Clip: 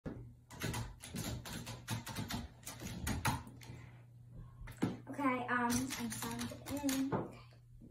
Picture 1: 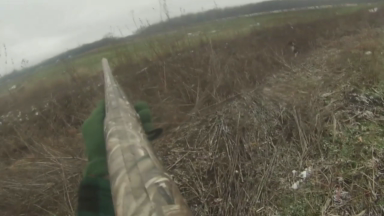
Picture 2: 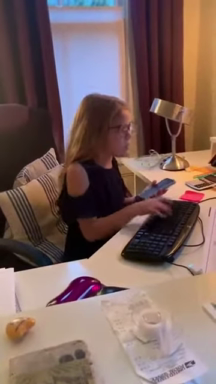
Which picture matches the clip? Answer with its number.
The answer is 2